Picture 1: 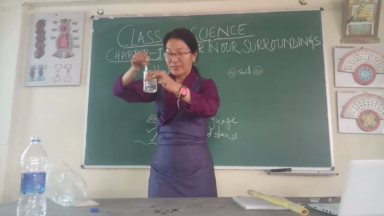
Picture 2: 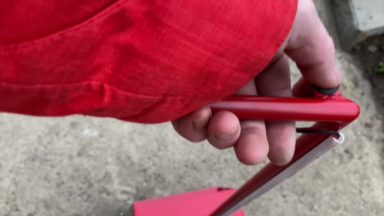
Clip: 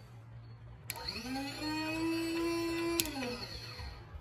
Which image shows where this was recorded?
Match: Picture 2